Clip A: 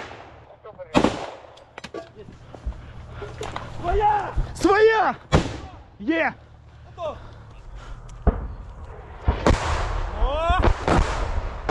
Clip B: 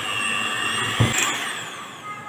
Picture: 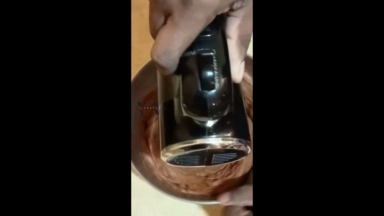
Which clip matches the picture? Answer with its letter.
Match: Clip B